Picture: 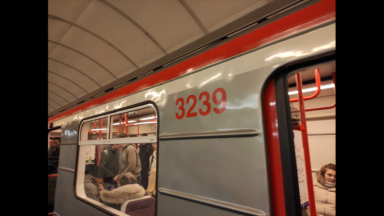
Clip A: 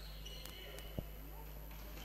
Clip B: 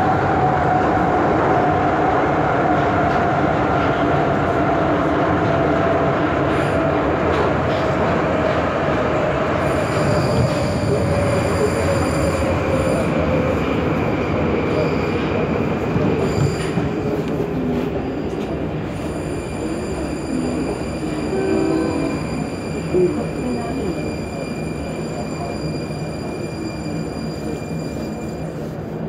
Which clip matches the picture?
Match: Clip B